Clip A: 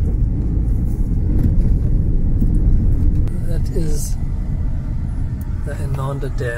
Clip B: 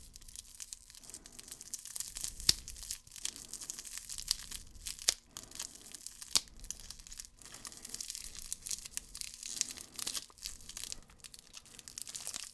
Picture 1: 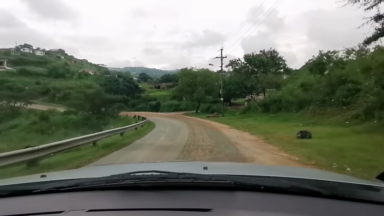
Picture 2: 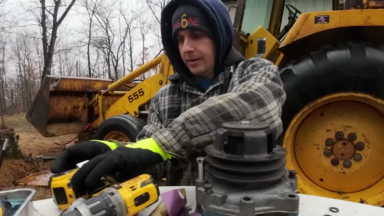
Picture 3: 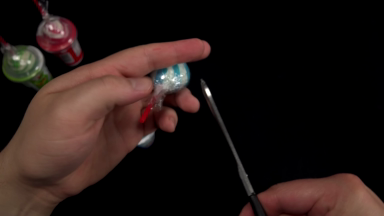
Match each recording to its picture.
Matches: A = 1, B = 3